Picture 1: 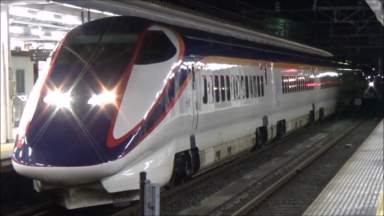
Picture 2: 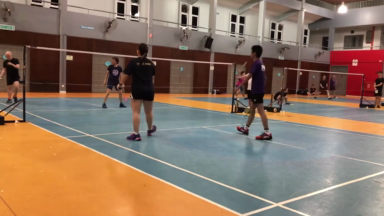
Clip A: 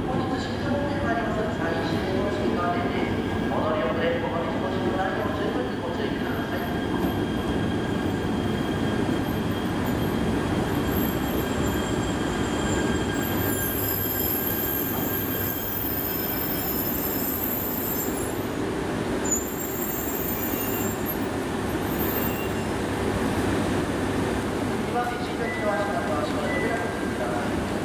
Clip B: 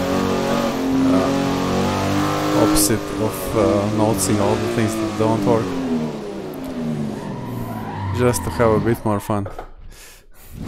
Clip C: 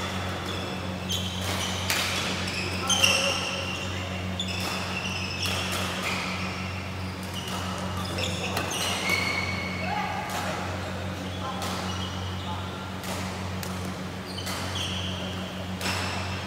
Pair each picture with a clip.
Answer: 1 A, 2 C